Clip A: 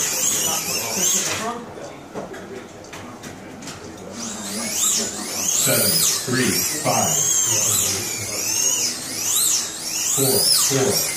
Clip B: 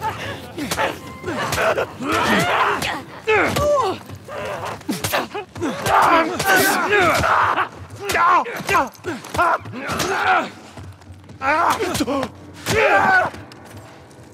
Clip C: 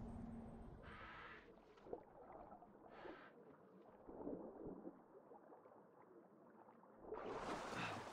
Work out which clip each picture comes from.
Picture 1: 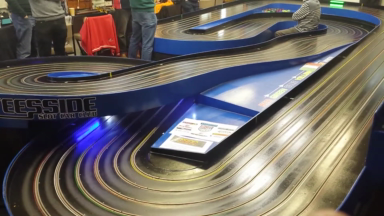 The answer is A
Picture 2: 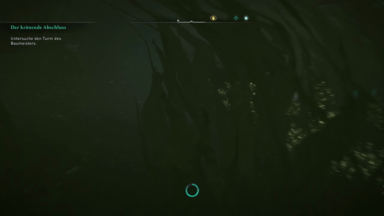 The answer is C